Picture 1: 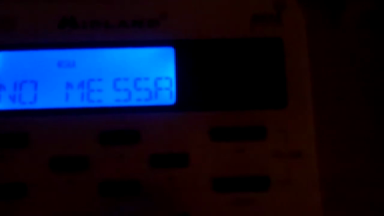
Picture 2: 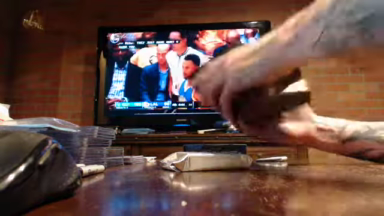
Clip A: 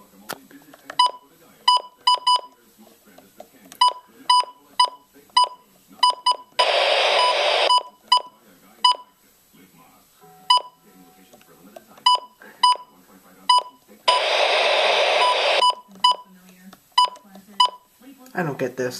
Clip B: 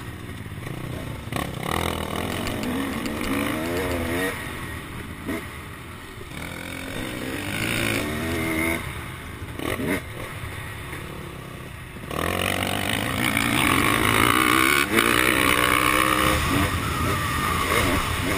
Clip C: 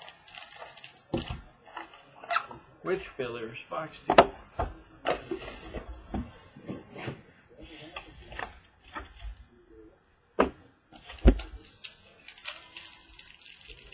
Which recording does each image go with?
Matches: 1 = A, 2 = C